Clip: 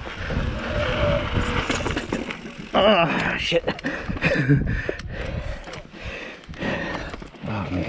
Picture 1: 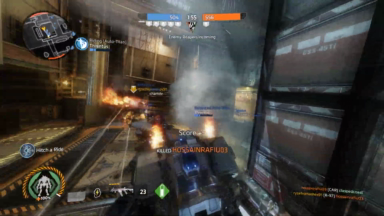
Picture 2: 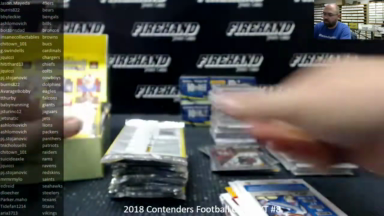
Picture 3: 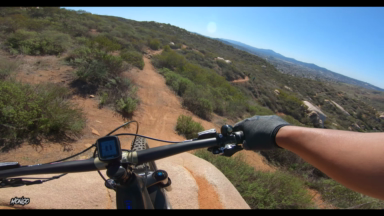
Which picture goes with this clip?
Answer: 3